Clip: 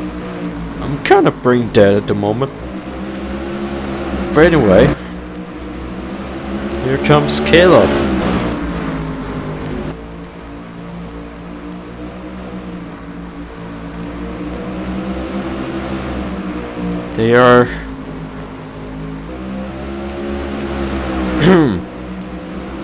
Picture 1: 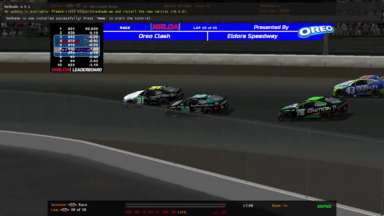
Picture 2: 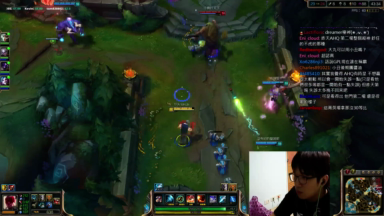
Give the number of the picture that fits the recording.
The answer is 1